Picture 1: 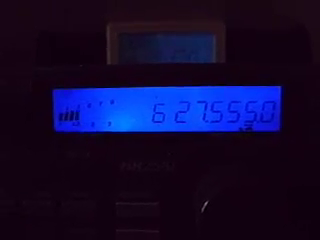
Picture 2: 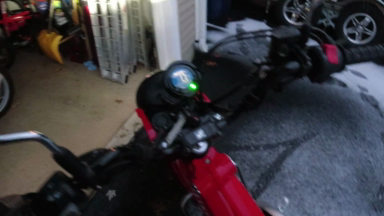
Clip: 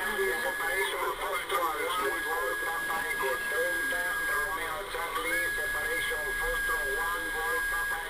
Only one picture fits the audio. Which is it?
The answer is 1